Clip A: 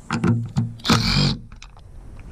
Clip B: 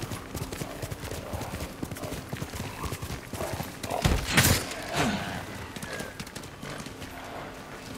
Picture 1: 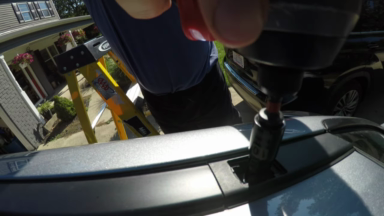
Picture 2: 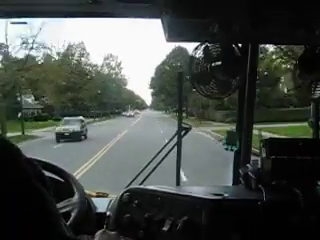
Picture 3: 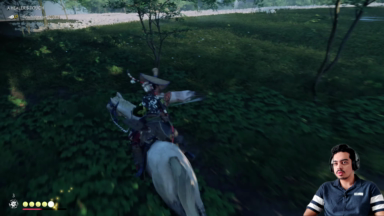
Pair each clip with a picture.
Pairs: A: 1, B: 3